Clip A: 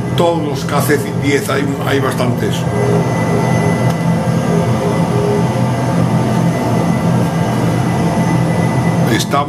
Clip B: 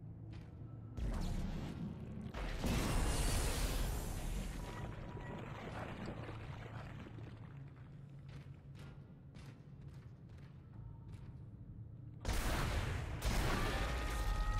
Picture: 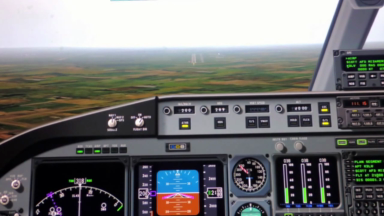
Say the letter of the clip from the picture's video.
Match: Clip A